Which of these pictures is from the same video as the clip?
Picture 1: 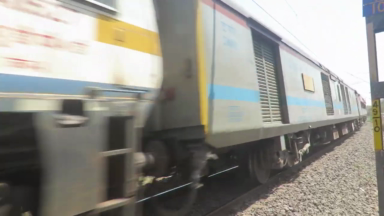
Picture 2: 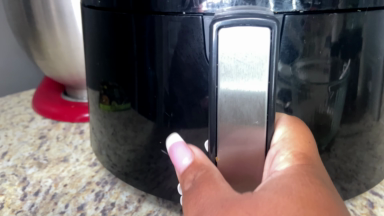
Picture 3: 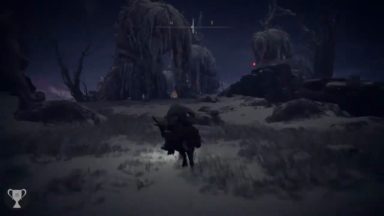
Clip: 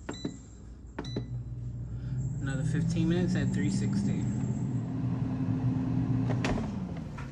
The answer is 2